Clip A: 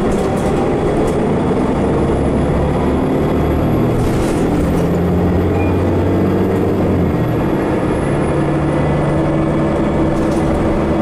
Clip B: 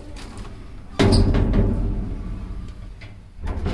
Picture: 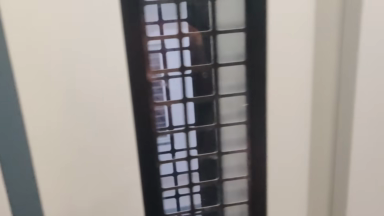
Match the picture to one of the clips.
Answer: B